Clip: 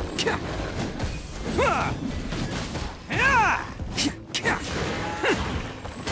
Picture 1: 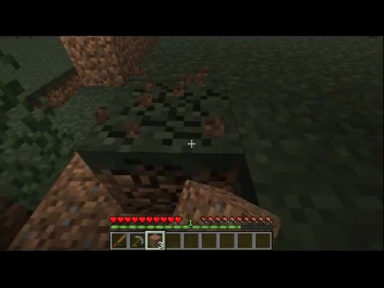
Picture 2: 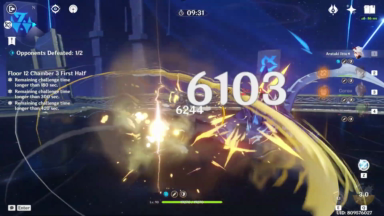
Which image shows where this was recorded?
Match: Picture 2